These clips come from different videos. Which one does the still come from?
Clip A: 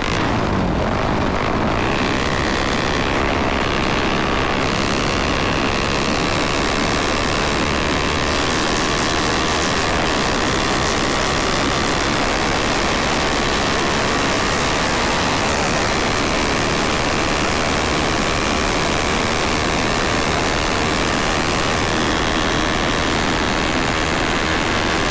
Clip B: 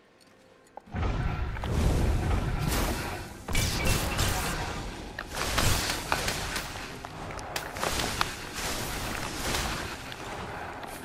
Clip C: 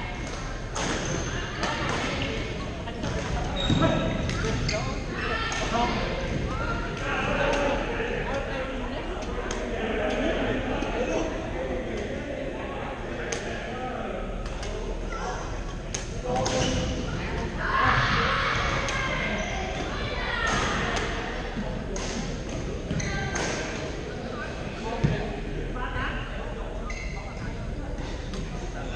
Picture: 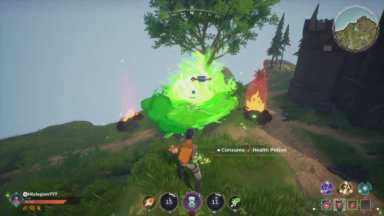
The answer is B